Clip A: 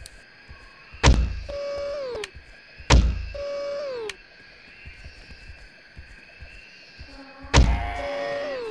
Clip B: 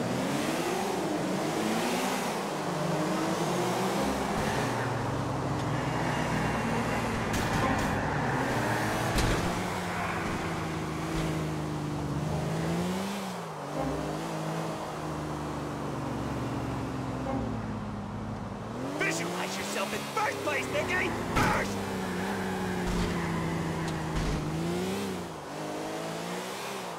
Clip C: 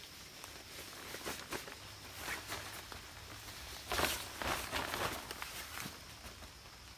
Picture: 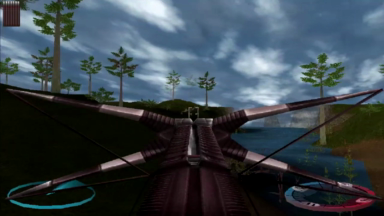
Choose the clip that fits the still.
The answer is A